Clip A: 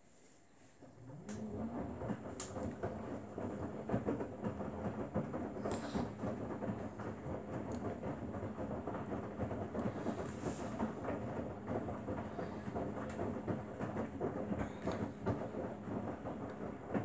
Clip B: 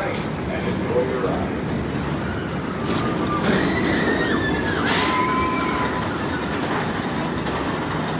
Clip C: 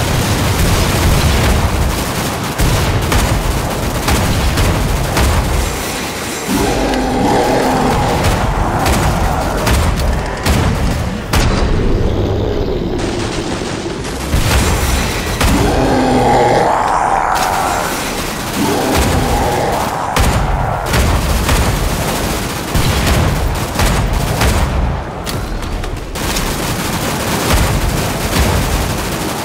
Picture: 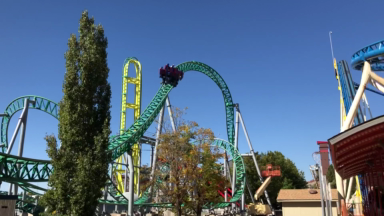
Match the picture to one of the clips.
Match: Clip B